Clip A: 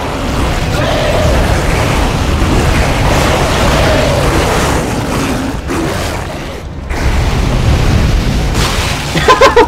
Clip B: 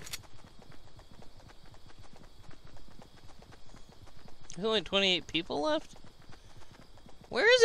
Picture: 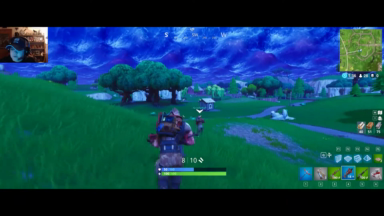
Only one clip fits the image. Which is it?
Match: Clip B